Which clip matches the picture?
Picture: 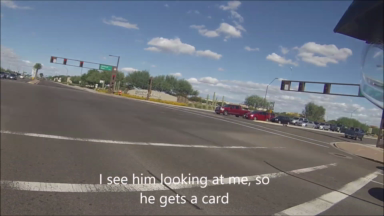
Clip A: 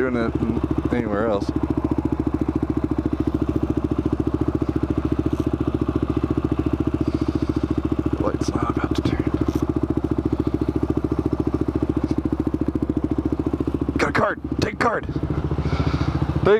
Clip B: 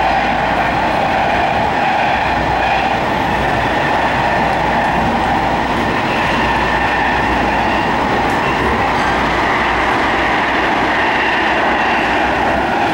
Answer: A